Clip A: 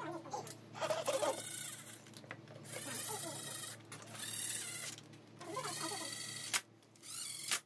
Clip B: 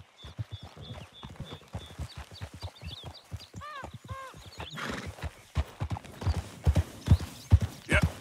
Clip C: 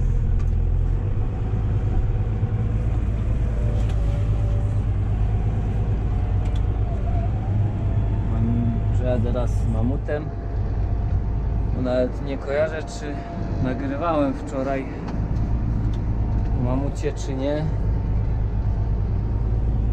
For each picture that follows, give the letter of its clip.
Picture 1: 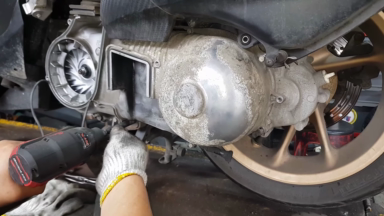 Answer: A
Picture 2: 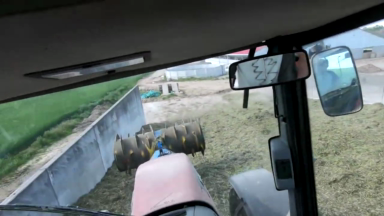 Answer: C